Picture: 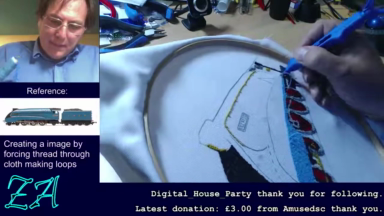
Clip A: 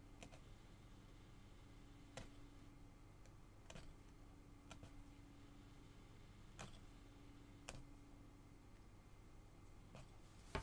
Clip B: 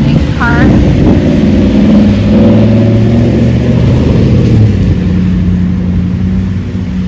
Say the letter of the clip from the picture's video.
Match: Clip A